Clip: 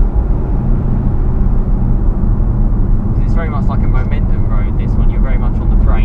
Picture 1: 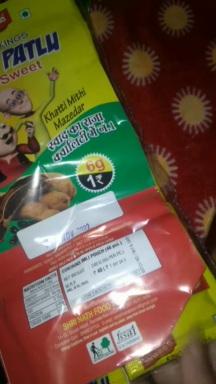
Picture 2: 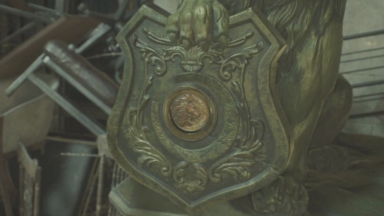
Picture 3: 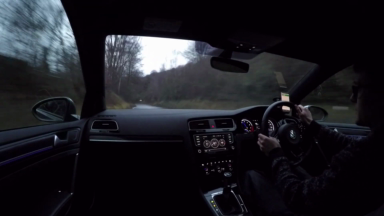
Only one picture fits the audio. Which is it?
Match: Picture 3